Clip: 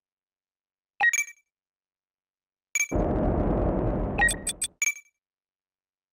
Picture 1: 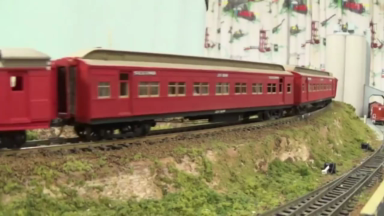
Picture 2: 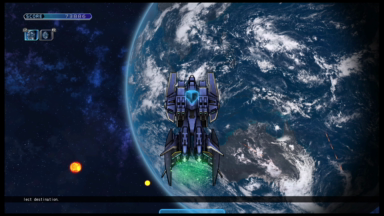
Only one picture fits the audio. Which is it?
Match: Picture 2